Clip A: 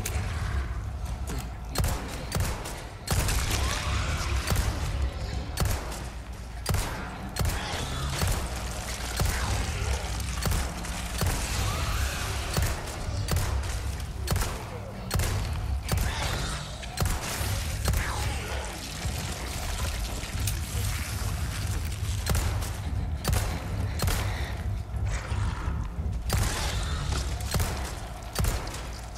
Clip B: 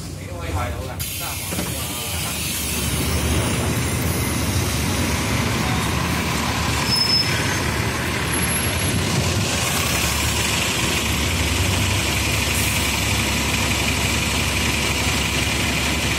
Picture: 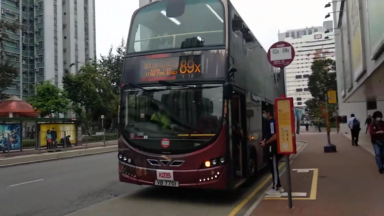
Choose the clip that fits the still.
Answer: B